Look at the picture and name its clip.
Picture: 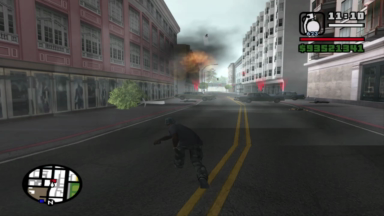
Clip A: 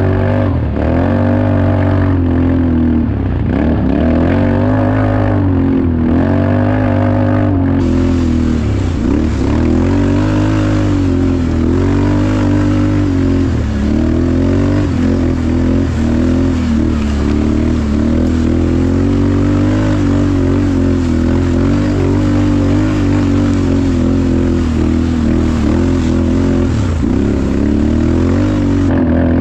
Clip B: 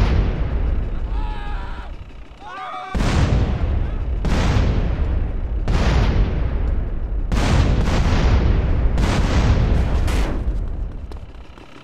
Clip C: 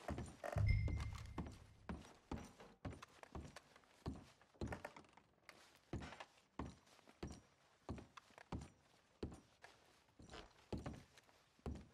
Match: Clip B